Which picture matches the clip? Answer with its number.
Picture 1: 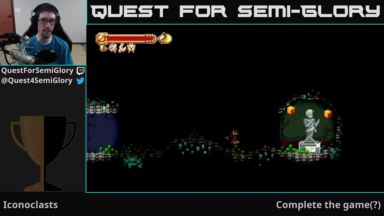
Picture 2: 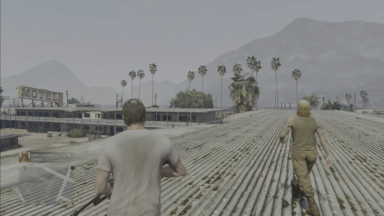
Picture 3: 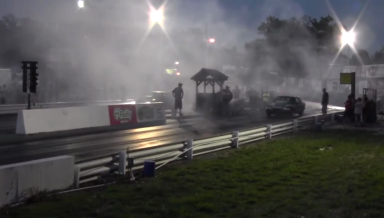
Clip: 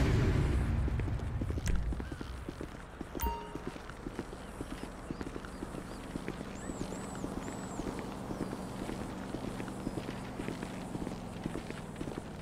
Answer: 2